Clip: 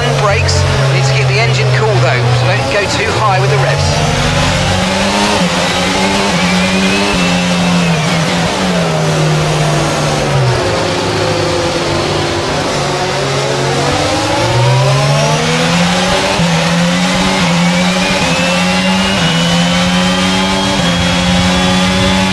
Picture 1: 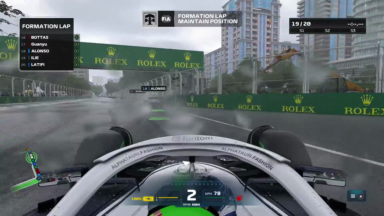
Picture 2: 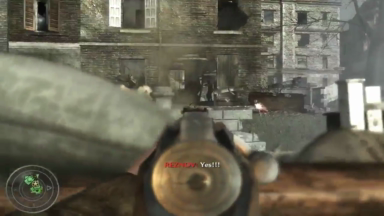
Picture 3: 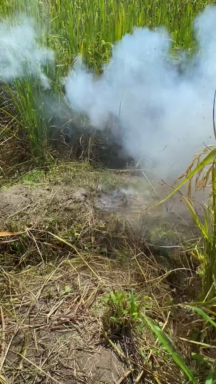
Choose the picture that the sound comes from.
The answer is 1